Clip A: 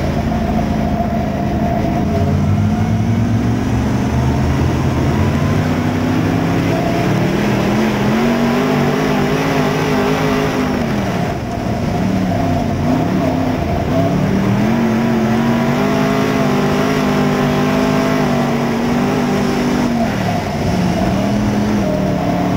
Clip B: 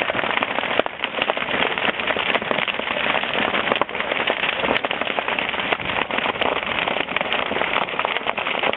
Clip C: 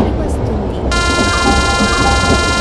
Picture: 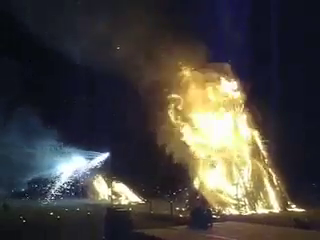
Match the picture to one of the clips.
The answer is B